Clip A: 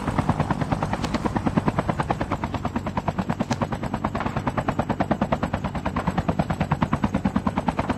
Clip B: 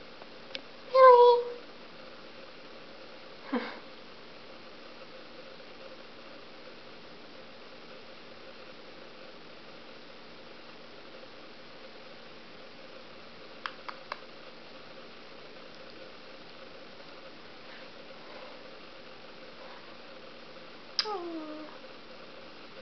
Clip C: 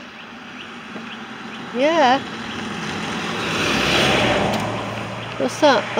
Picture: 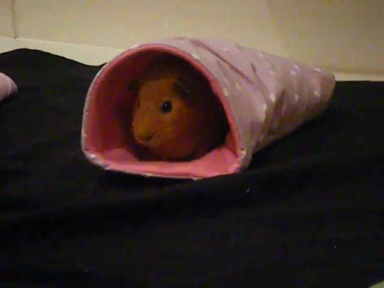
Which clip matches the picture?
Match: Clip B